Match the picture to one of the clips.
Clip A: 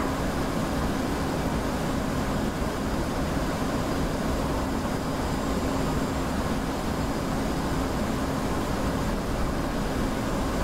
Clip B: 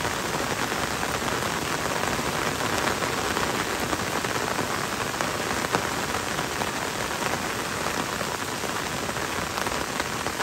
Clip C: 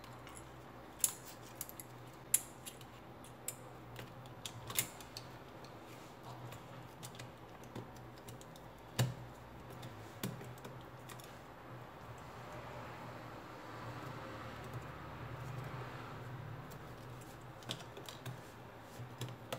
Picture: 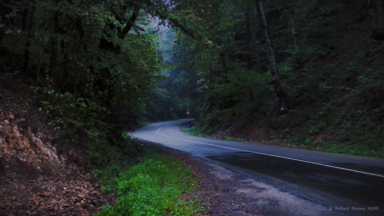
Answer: B